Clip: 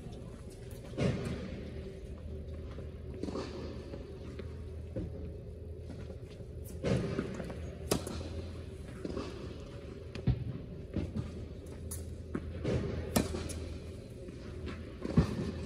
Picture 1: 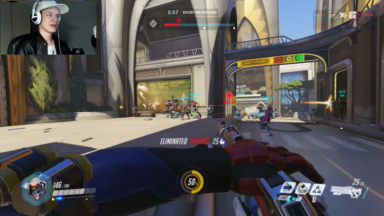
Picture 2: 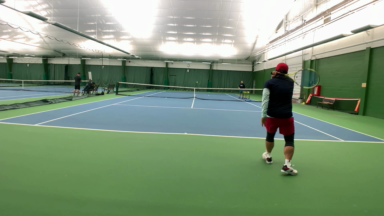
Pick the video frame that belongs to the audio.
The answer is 2